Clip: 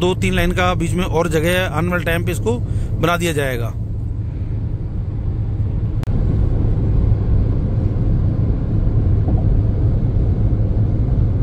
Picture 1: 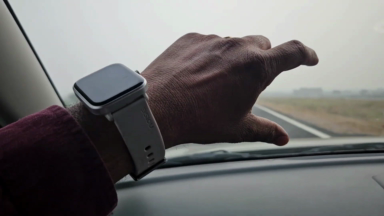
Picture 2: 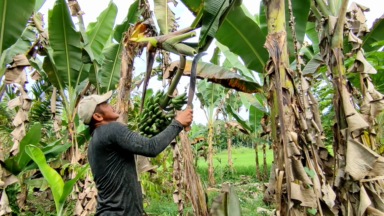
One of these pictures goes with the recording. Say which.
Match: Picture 1